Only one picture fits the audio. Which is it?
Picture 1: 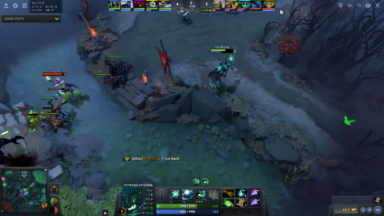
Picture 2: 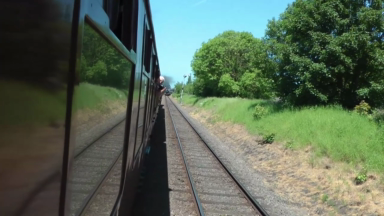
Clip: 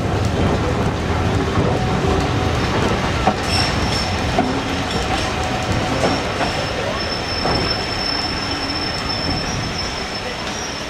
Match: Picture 2